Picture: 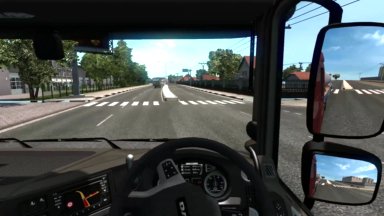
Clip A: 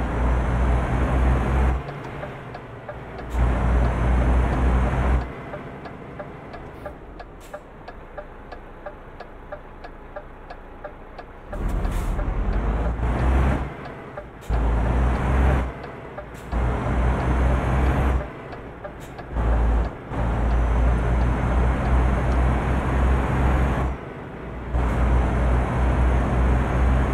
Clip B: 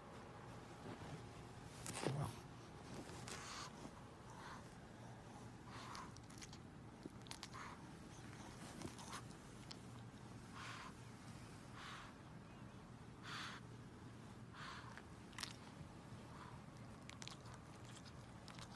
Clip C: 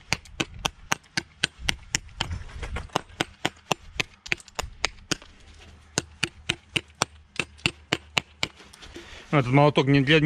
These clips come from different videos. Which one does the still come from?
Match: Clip A